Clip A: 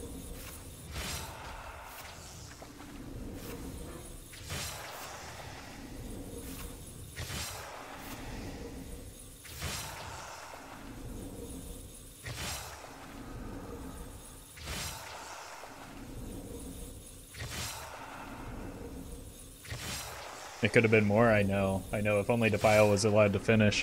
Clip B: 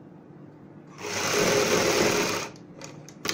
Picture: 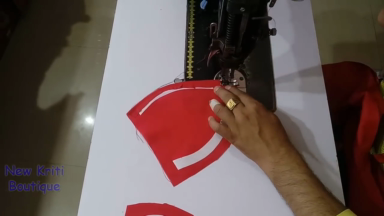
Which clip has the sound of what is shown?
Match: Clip B